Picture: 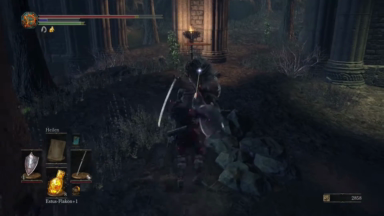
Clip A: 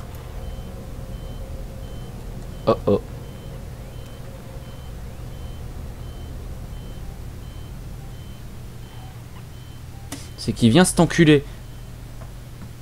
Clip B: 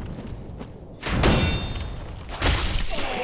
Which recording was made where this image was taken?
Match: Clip B